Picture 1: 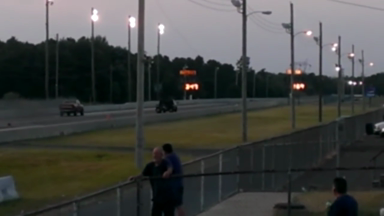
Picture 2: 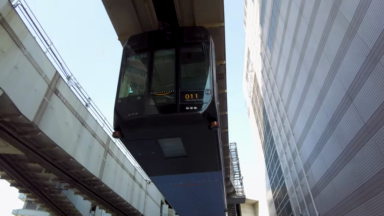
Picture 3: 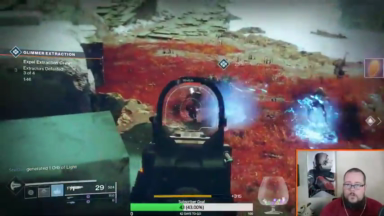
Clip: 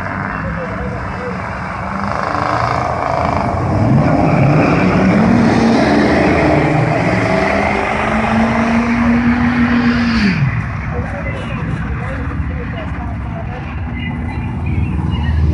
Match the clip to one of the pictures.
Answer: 1